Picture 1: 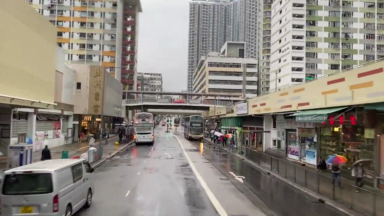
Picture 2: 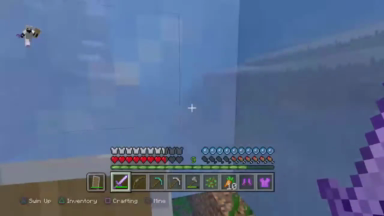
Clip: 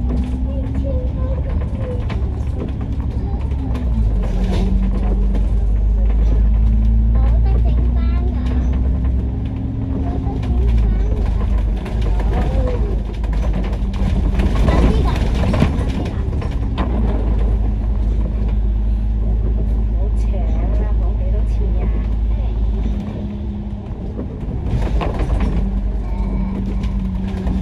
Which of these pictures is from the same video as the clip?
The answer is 1